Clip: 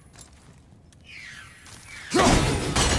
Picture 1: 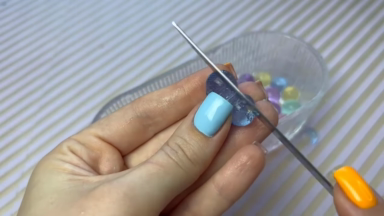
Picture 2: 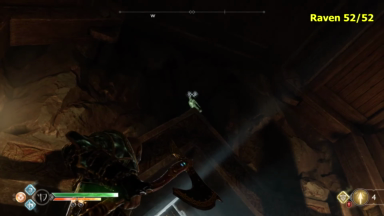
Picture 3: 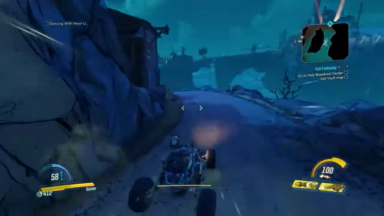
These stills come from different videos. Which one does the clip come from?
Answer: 2